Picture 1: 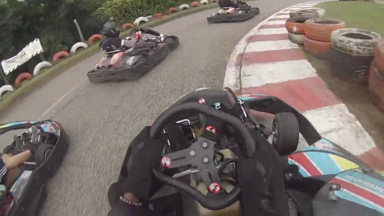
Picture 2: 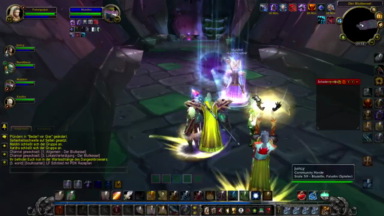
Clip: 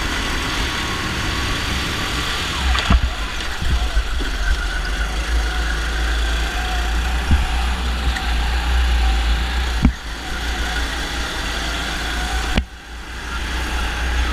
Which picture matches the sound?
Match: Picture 1